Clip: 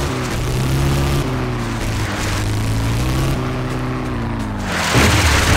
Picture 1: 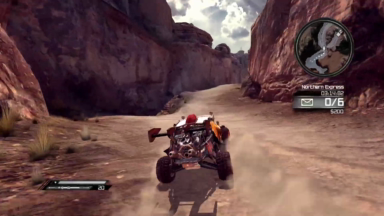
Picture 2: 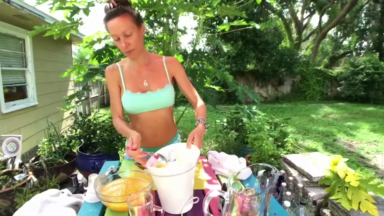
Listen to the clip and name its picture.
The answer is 1